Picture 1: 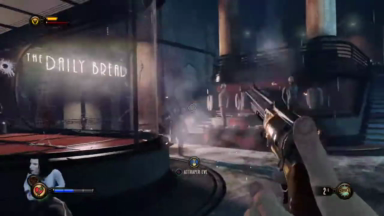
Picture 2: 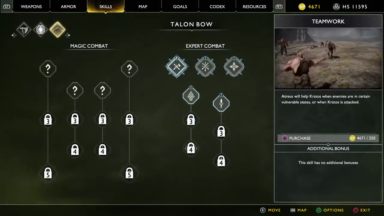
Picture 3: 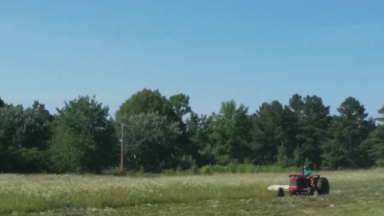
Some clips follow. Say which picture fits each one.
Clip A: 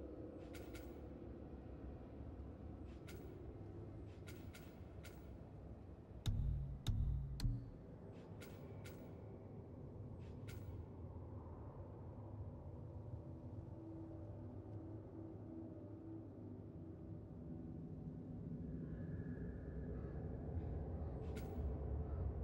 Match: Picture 2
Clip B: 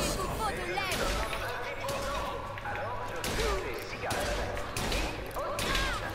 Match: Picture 1